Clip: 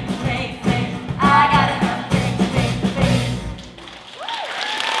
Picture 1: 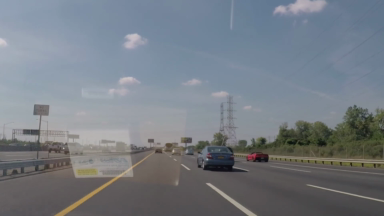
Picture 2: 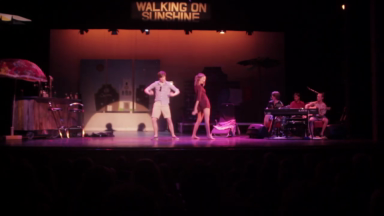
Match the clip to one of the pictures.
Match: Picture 2